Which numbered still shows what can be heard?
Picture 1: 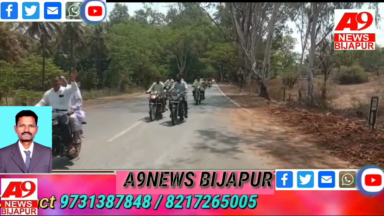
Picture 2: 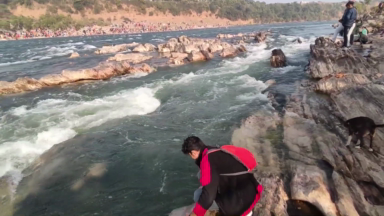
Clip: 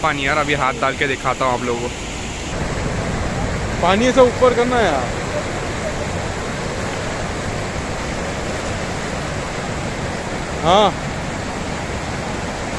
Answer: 2